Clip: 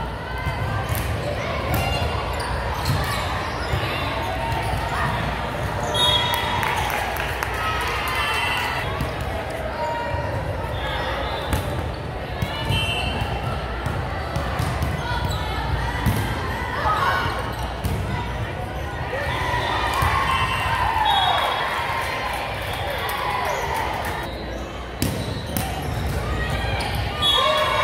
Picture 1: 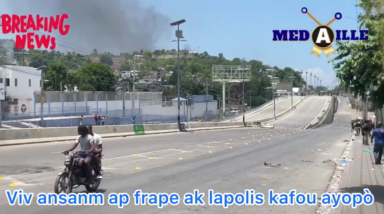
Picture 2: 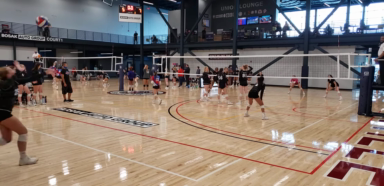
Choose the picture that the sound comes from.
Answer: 2